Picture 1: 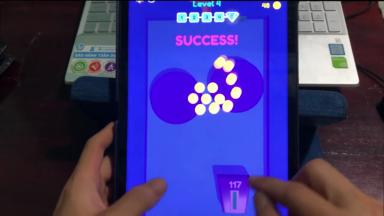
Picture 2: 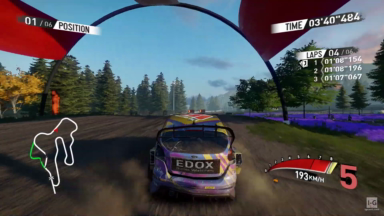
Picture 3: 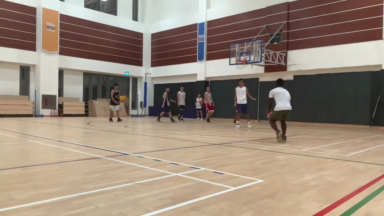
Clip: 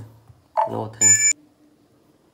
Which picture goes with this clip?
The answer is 1